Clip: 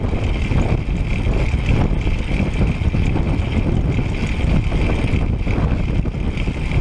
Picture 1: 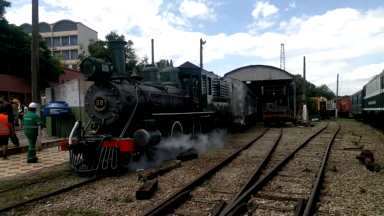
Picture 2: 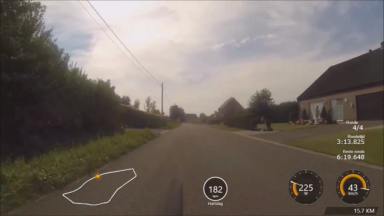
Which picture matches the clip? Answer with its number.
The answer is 2